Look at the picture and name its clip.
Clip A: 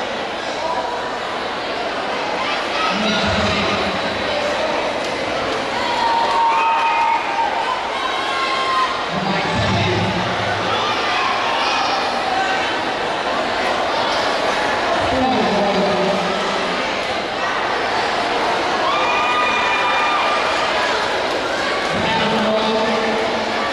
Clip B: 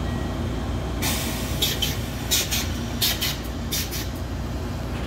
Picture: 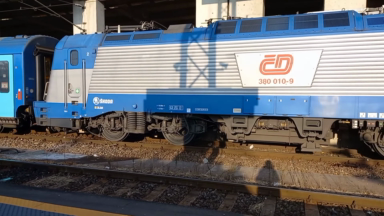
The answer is B